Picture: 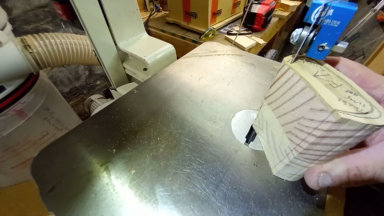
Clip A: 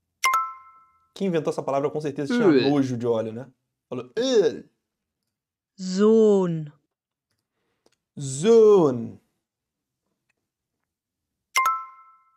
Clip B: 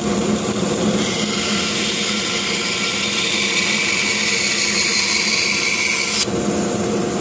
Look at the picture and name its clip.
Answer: B